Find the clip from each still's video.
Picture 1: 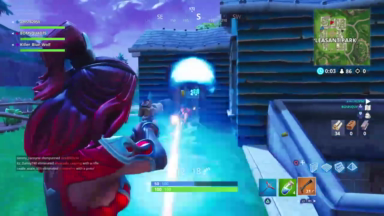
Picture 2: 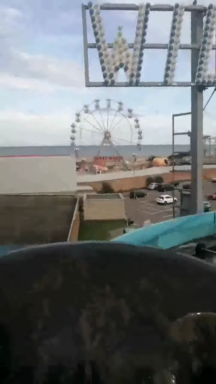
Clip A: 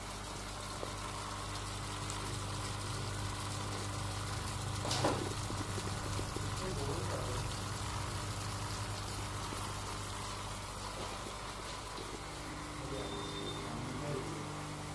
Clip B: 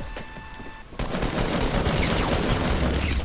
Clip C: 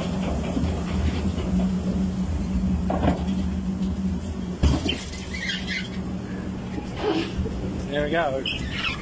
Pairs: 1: B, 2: C